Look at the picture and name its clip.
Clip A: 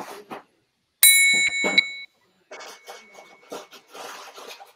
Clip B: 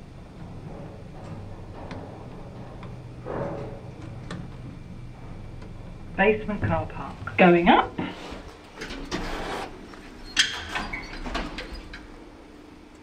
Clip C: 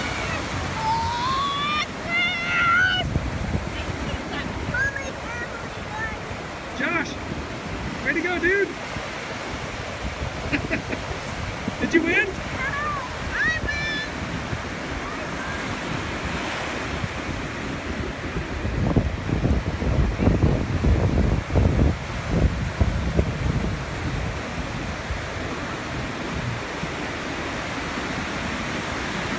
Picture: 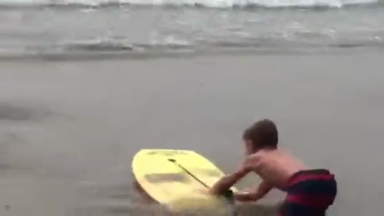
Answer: C